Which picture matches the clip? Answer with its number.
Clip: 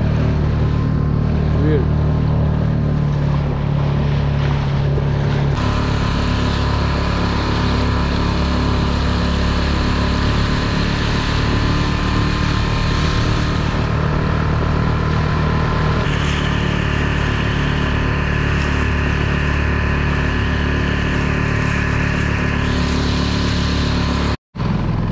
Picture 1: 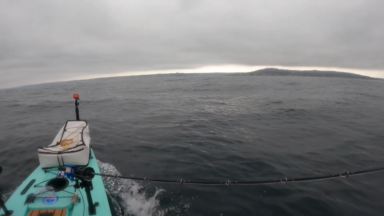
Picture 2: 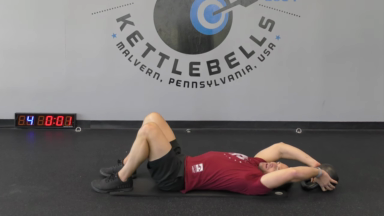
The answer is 1